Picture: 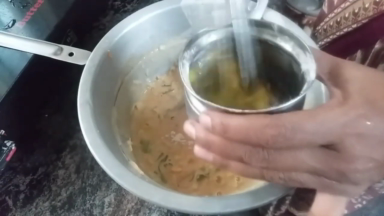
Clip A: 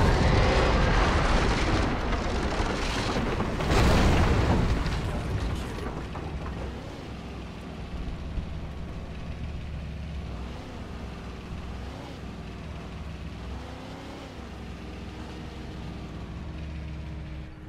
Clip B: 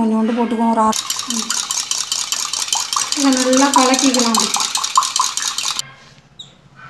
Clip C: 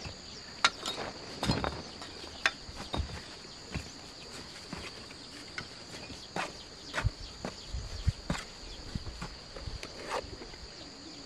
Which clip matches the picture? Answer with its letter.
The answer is B